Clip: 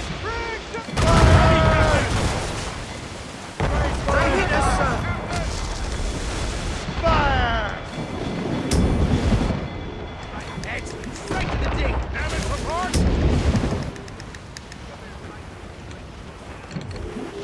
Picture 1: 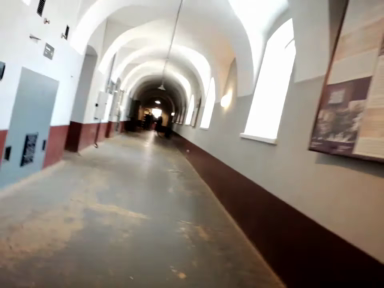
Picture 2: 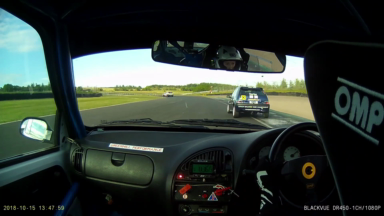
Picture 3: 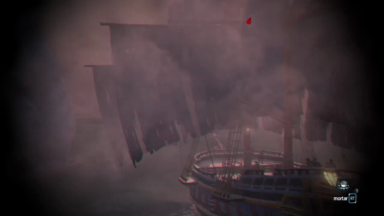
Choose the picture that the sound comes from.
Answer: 3